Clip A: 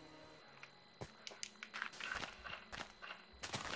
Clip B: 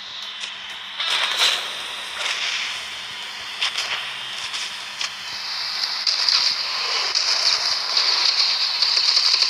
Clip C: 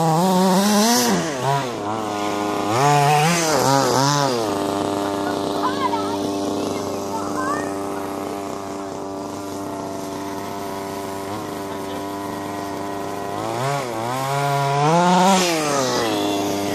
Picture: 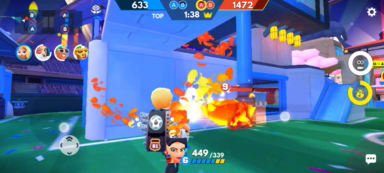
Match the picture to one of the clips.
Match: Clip B